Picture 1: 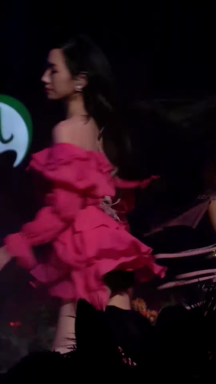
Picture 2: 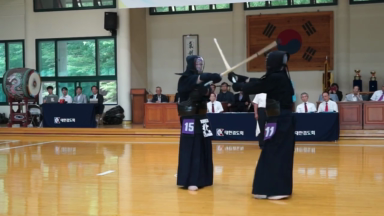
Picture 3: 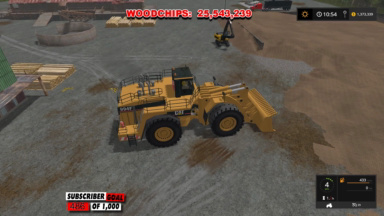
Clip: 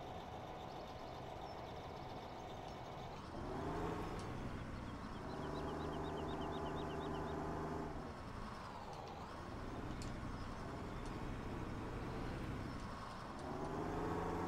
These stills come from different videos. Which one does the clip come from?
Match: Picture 3